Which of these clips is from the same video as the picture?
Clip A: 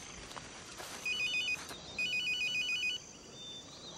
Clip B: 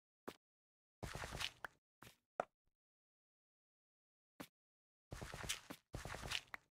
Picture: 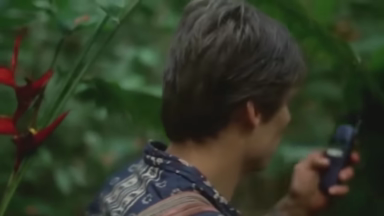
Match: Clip A